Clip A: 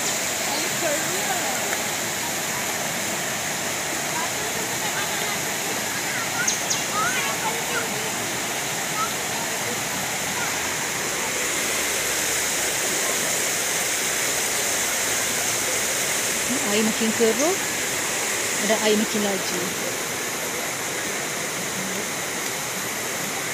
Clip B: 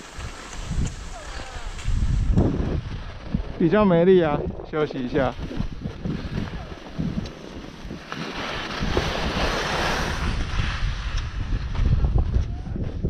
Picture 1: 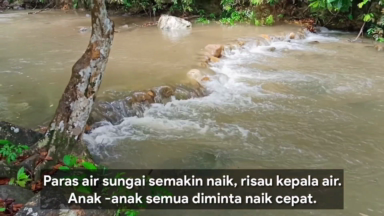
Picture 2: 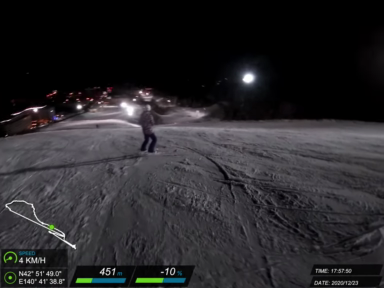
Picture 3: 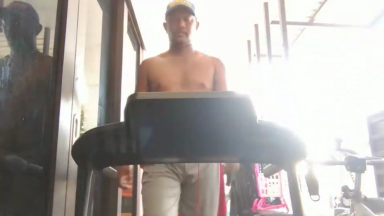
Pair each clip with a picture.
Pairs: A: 1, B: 2